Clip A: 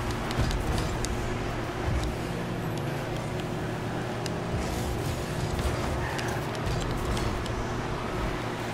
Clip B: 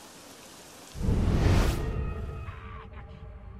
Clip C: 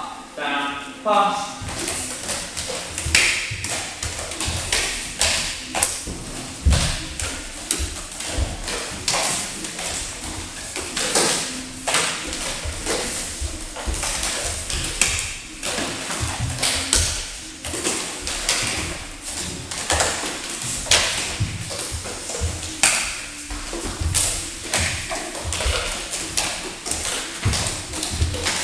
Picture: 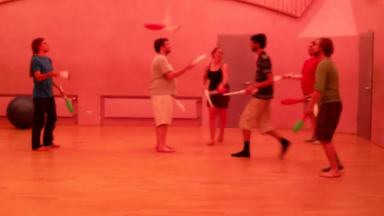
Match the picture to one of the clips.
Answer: C